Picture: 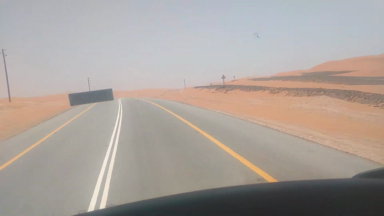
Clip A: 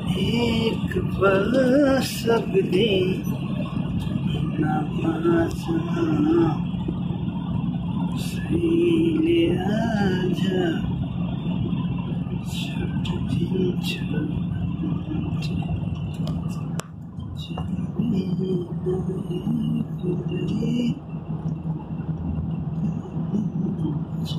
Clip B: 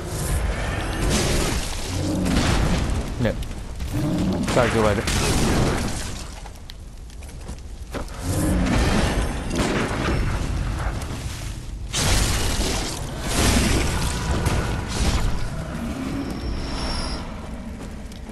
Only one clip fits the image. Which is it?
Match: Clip A